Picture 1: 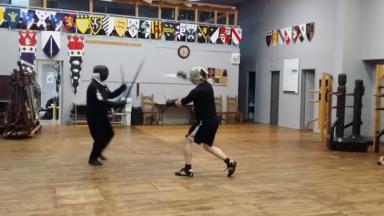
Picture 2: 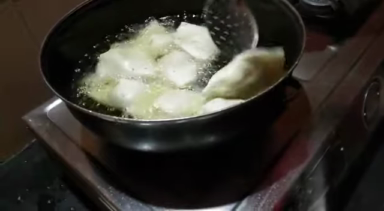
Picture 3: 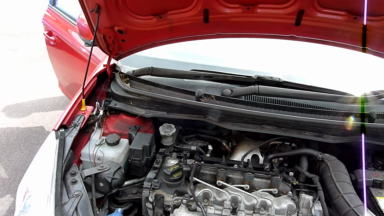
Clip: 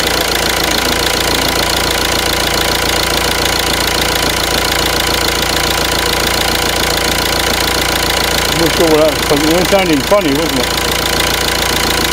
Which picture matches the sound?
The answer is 3